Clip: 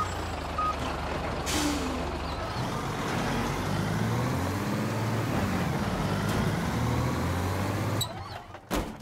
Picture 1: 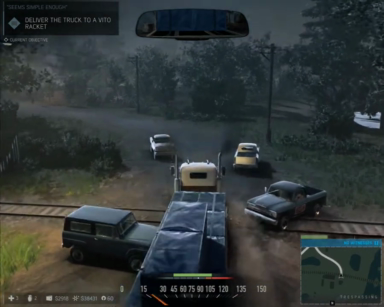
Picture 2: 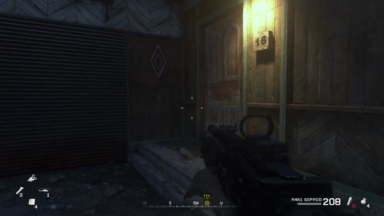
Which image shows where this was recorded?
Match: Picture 1